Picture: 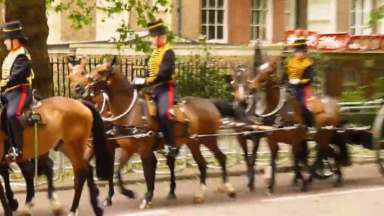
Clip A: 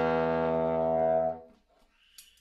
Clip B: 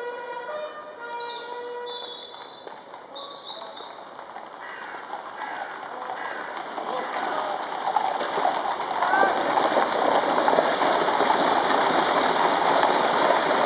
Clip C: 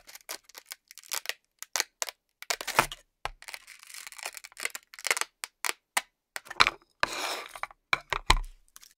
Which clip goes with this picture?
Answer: B